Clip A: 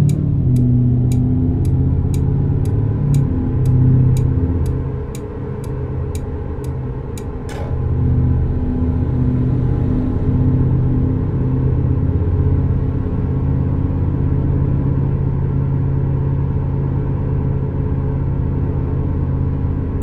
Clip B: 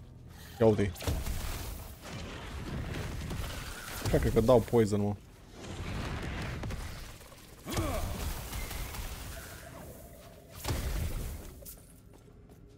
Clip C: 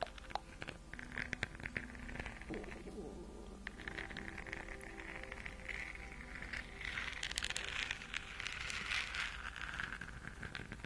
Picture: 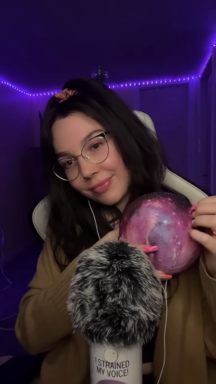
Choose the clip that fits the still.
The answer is C